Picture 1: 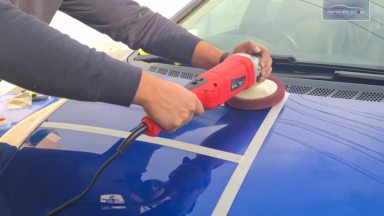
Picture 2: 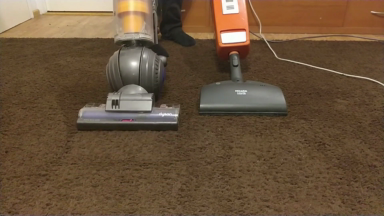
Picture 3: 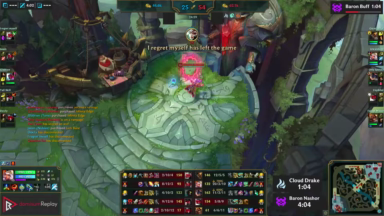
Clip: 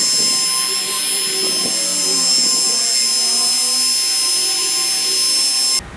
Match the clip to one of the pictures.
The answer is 1